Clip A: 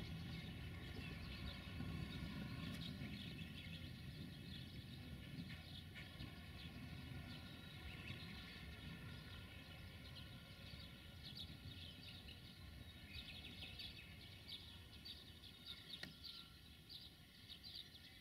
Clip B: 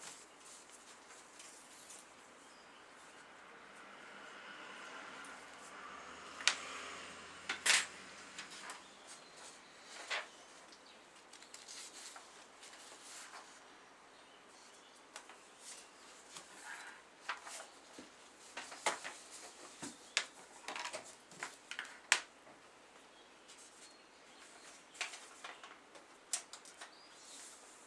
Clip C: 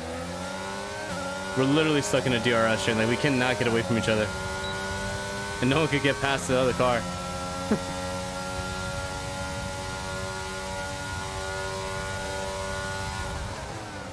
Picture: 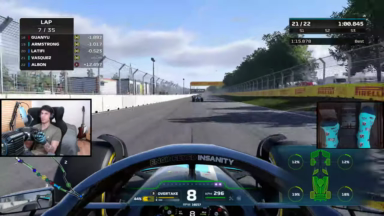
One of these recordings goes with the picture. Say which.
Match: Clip C